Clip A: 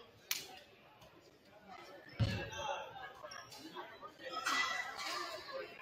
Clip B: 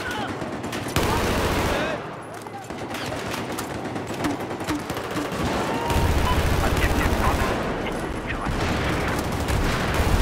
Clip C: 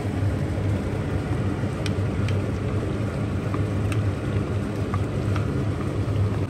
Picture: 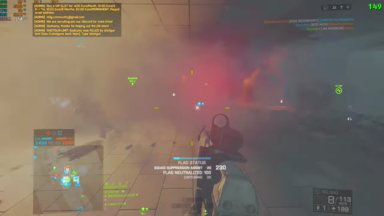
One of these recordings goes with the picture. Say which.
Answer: B